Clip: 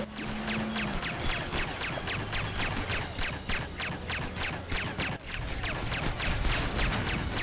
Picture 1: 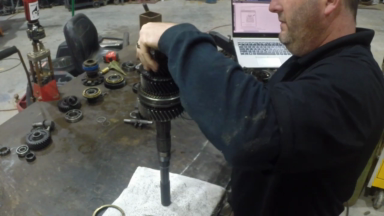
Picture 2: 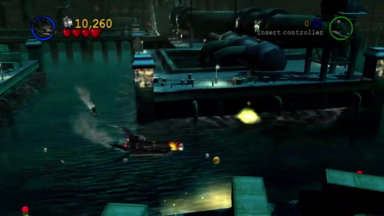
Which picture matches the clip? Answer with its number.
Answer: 2